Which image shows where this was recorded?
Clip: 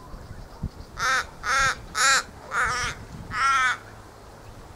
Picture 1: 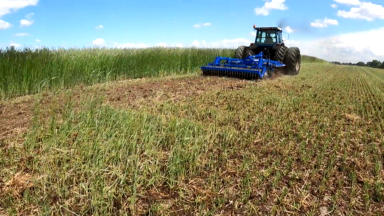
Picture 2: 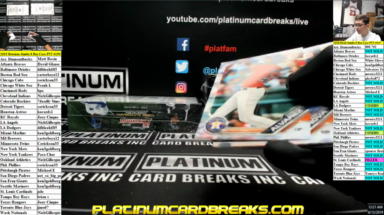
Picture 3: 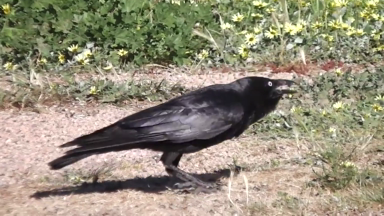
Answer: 3